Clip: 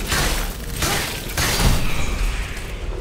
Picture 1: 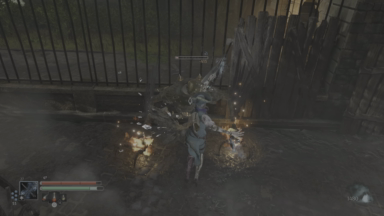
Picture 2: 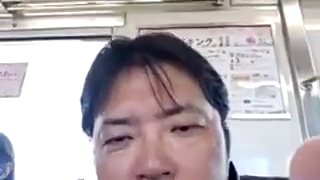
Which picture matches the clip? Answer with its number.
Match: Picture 1